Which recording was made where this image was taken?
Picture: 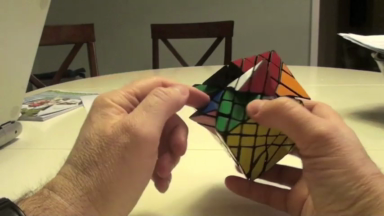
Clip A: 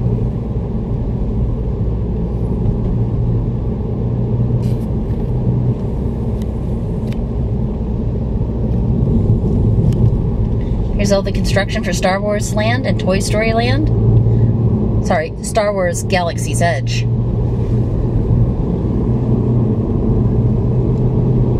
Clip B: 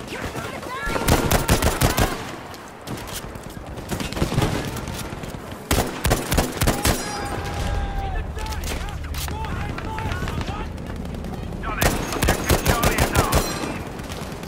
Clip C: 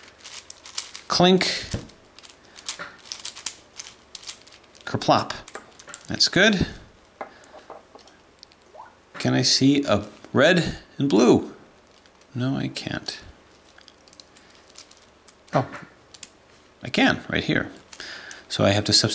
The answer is C